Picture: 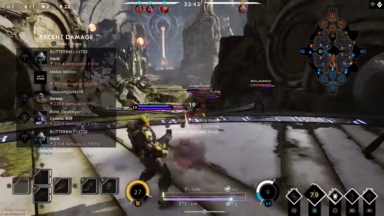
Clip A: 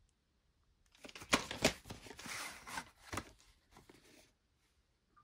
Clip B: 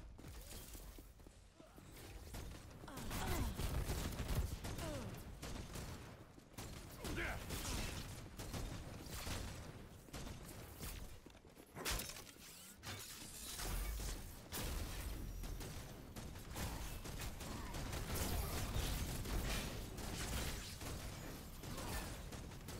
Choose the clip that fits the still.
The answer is B